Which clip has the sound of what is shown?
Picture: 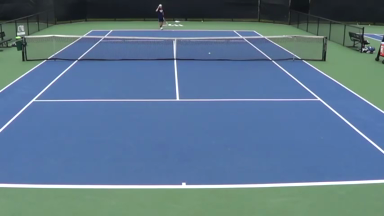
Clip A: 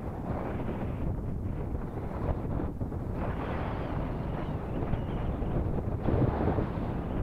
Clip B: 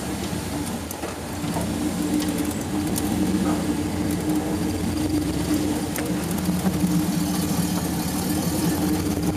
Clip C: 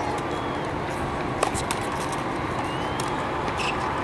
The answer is C